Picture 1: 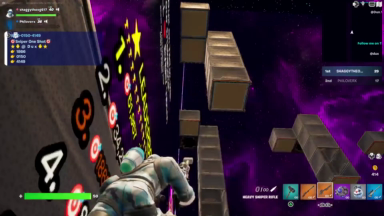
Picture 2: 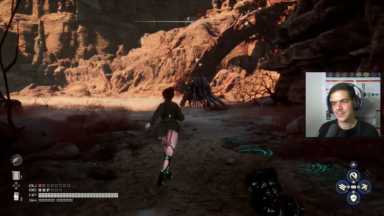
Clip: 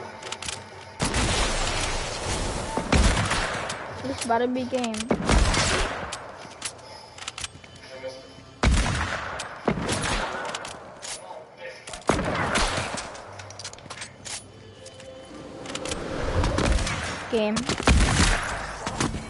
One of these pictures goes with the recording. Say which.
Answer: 1